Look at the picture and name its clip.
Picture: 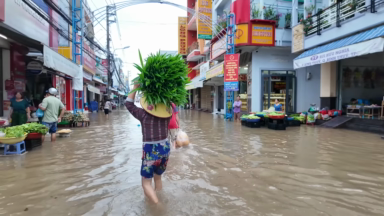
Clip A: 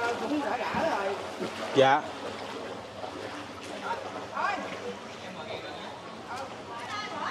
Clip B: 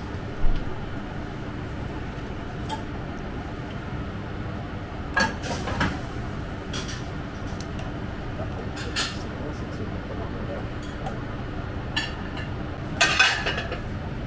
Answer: A